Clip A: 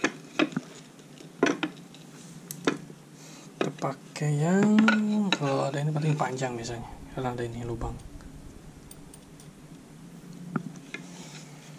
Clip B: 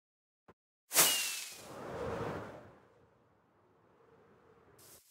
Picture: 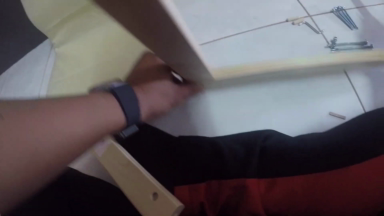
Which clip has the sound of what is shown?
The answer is A